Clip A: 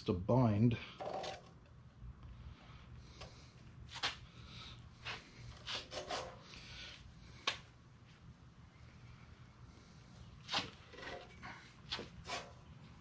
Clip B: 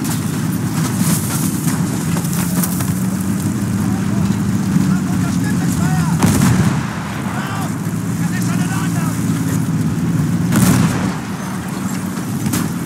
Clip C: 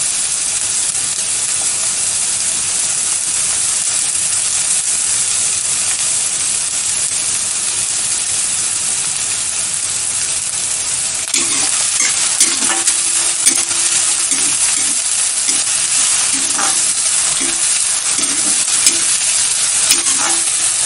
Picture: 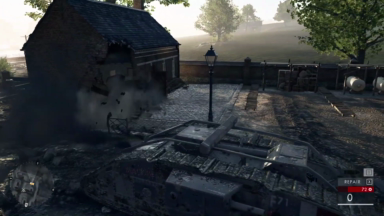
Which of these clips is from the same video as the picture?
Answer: B